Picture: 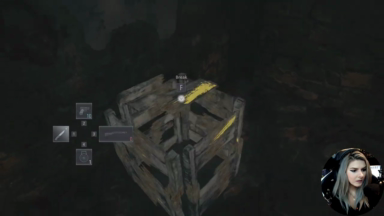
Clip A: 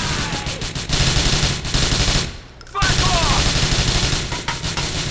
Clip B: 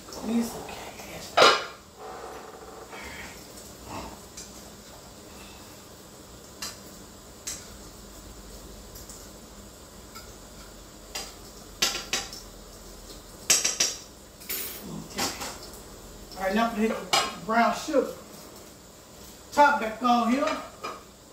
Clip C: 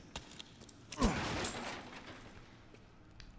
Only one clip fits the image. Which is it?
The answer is C